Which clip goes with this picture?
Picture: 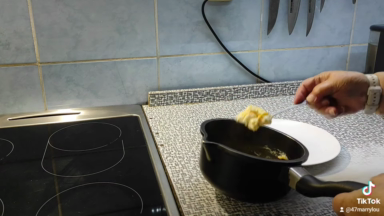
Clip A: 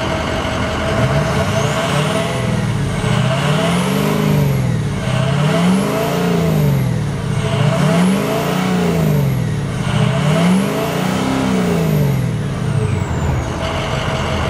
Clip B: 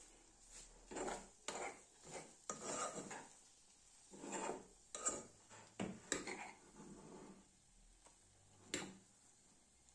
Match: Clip B